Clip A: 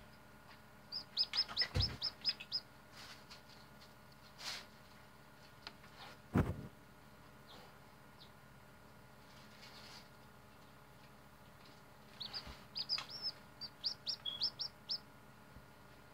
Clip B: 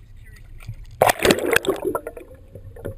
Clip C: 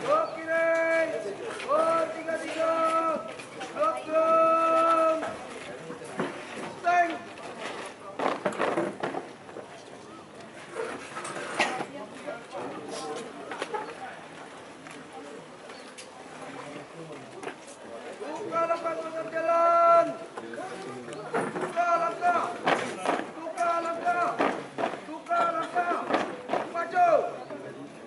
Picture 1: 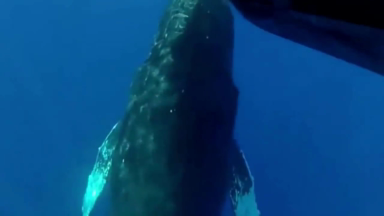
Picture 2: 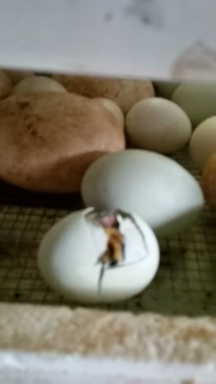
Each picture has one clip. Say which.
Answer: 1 B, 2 A